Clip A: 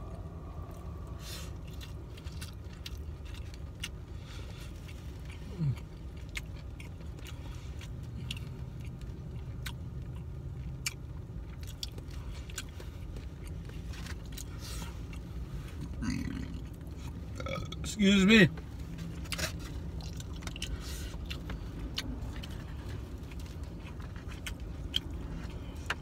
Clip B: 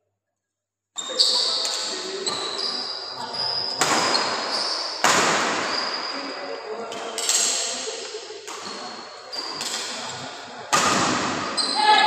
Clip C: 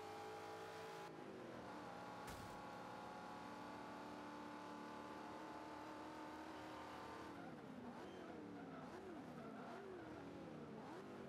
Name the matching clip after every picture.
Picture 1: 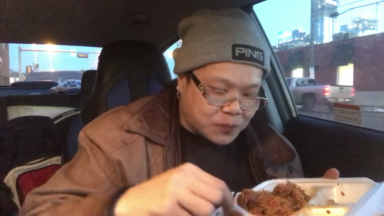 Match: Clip A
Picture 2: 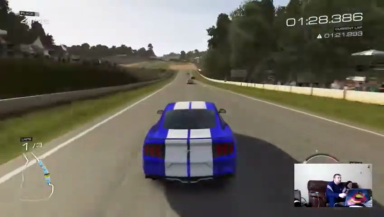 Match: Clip C